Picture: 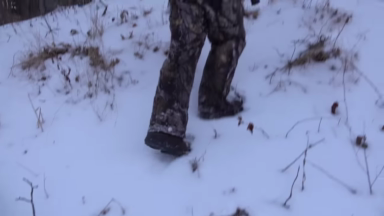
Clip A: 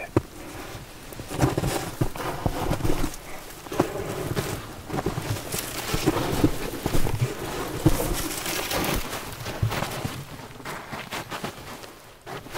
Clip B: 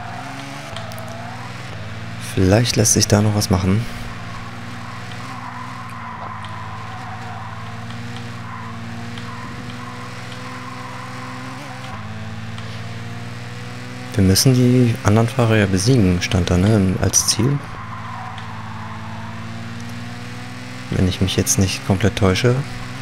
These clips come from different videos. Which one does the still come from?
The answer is A